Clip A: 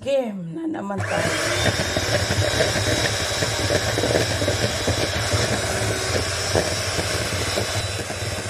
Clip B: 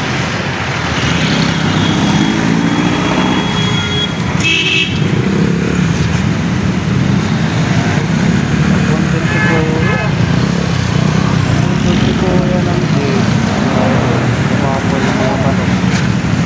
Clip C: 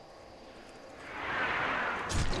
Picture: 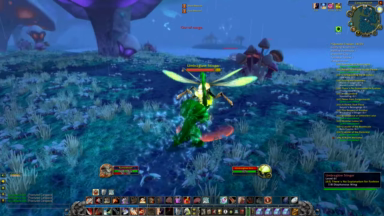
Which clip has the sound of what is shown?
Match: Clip C